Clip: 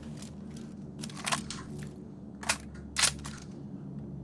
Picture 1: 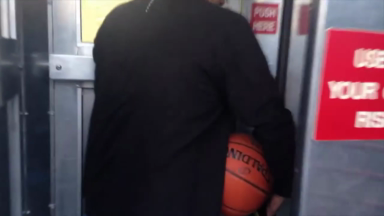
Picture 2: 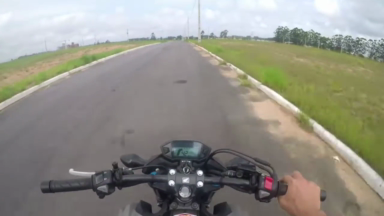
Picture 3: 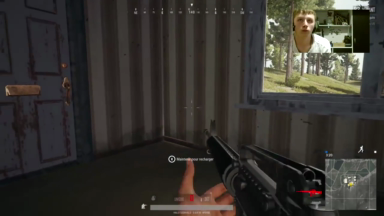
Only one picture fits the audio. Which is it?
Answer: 3